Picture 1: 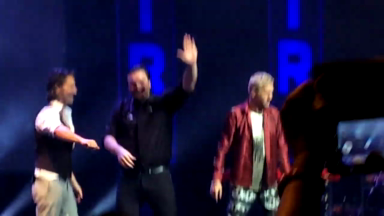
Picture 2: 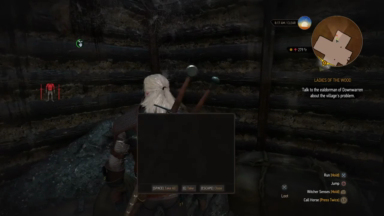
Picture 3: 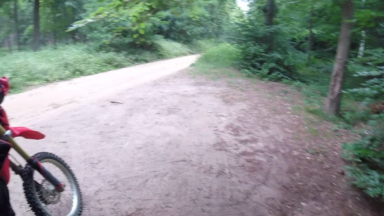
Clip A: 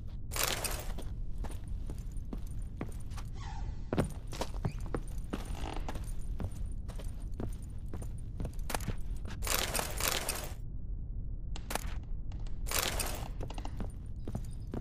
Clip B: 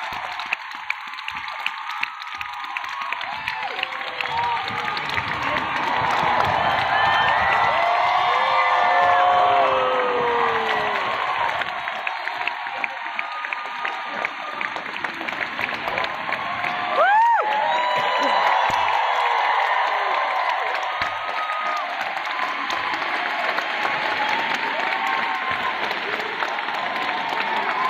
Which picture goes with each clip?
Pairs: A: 2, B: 1